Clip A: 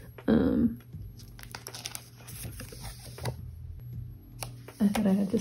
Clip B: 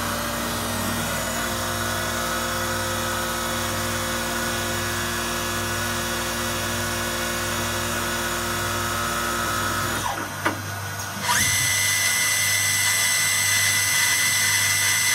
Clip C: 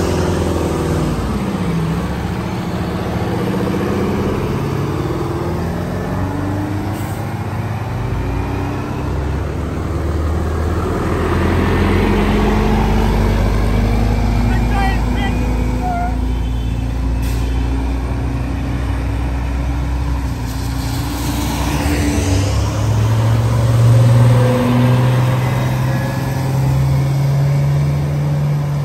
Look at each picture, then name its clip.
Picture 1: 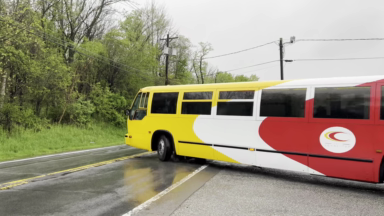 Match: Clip C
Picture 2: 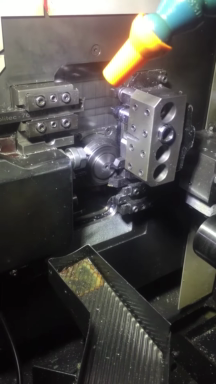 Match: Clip B